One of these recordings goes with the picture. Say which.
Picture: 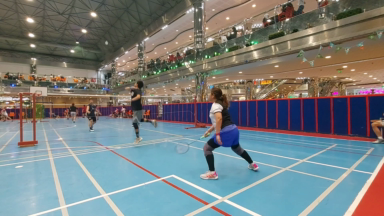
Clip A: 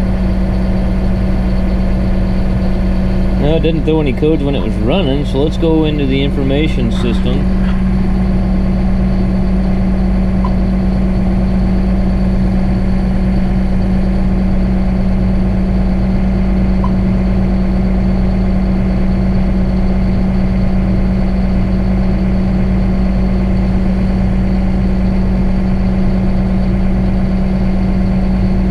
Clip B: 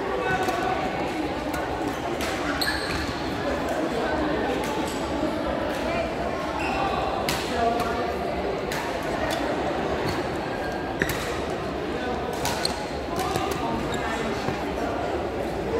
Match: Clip B